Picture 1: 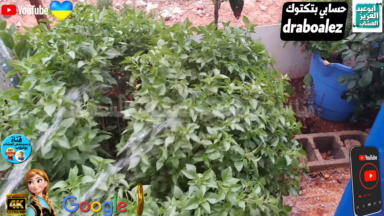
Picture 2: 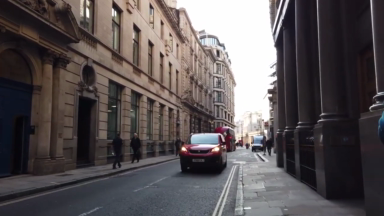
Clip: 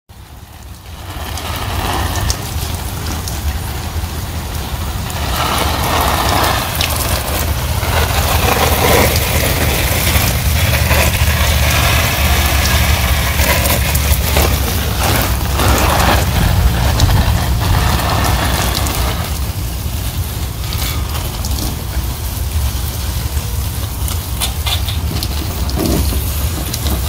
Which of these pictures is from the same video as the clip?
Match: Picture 1